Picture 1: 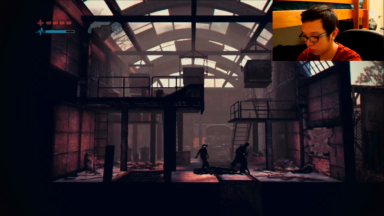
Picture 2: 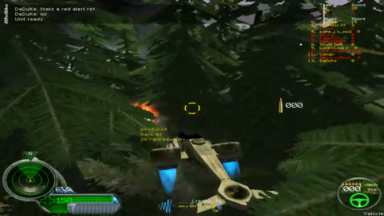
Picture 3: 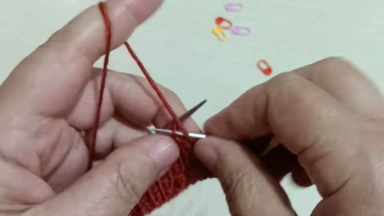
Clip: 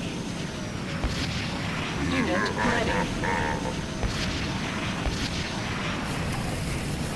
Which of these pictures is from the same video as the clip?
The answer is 2